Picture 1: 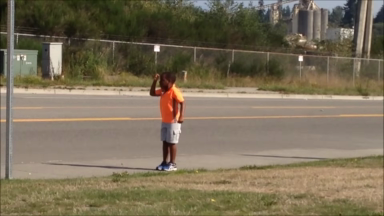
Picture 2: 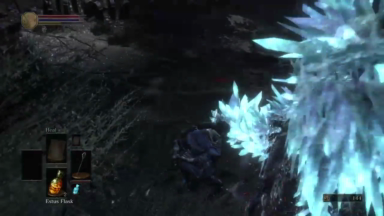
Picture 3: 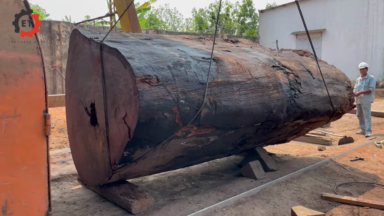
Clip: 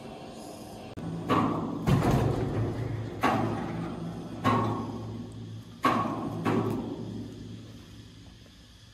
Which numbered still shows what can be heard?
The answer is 3